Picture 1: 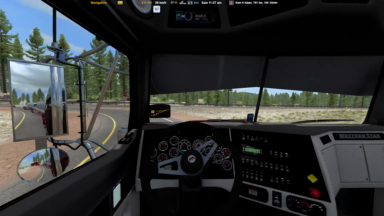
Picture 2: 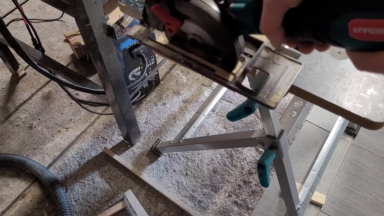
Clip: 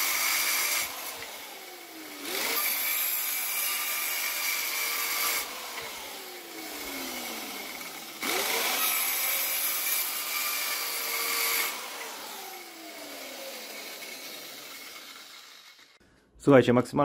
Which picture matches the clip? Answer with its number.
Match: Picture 2